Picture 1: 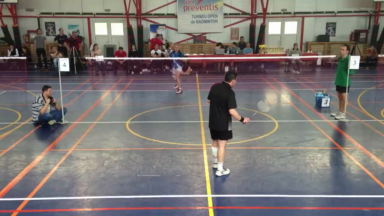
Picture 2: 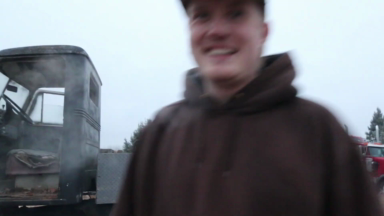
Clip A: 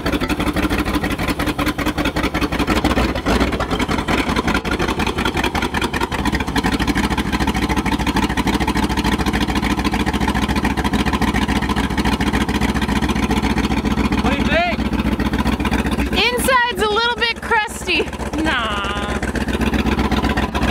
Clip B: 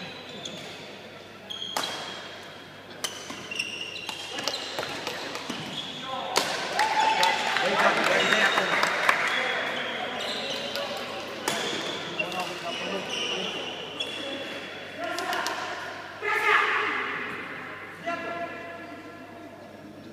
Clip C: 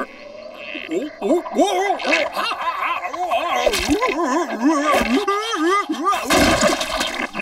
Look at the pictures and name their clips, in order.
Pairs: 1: B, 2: A